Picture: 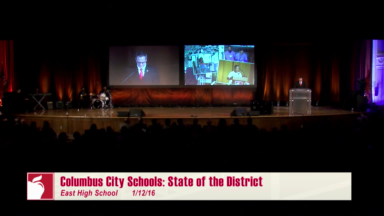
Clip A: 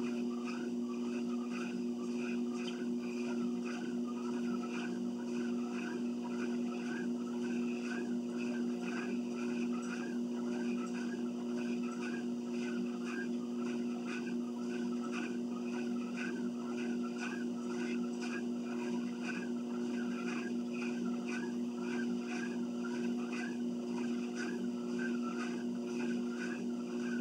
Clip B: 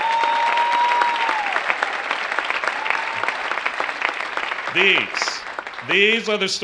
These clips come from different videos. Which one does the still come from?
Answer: B